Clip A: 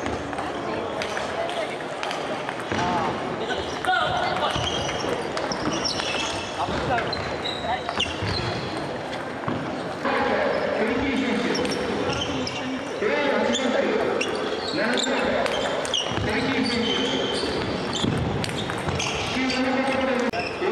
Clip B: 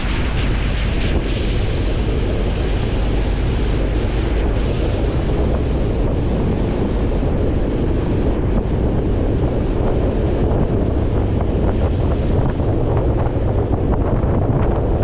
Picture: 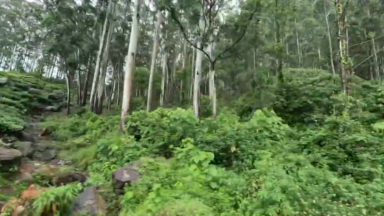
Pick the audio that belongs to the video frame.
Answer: B